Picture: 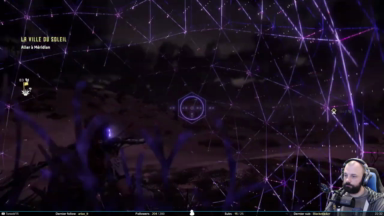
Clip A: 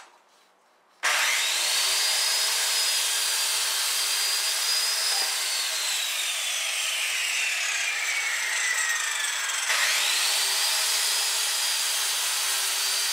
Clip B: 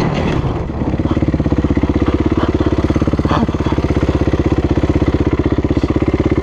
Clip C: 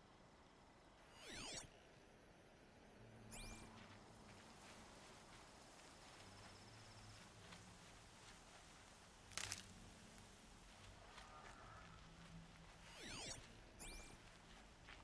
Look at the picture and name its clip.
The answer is C